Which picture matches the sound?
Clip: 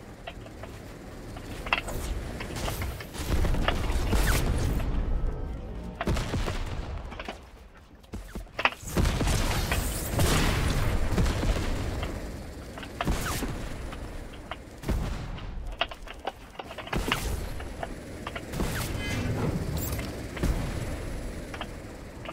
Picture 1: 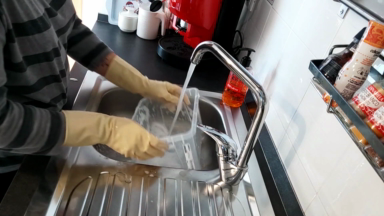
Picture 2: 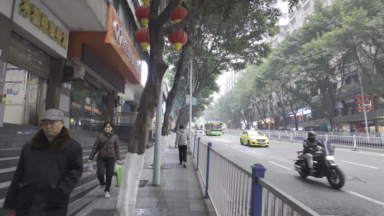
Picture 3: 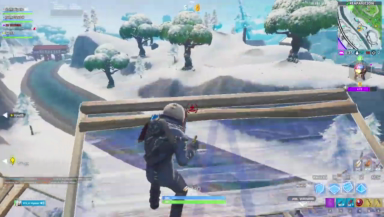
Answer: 3